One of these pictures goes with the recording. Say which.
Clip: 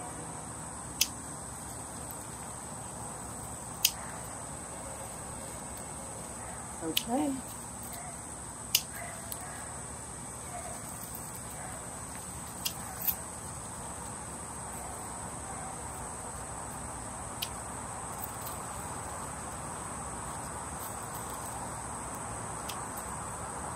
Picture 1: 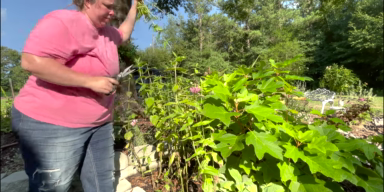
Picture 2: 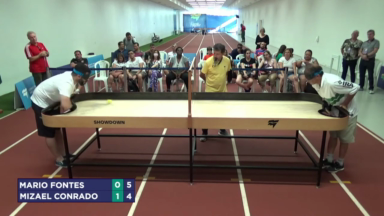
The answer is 1